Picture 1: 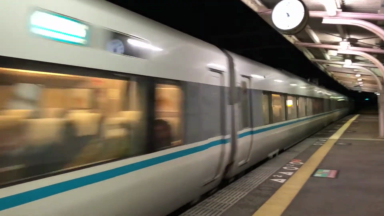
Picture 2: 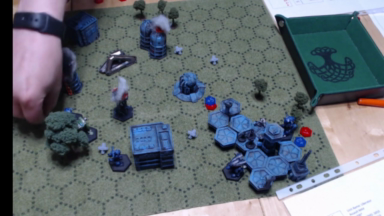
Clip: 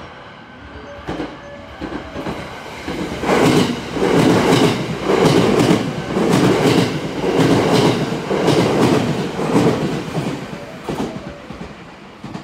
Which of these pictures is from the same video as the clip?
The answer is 1